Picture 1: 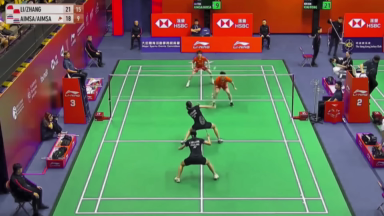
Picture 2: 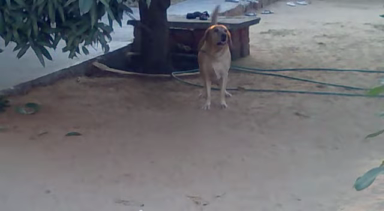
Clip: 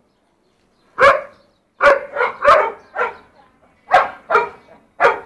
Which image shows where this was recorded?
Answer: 2